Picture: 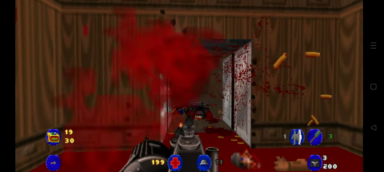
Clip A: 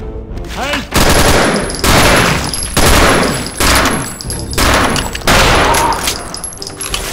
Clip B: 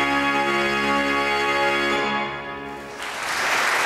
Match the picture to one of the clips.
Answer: A